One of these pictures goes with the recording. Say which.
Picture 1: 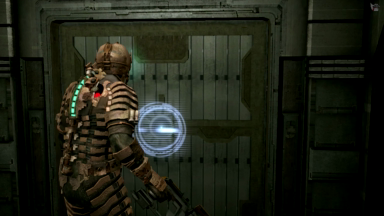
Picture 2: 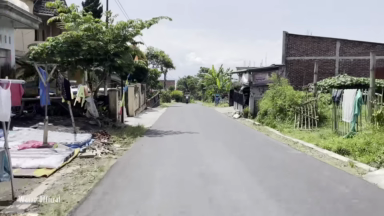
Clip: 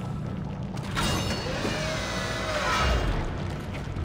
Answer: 1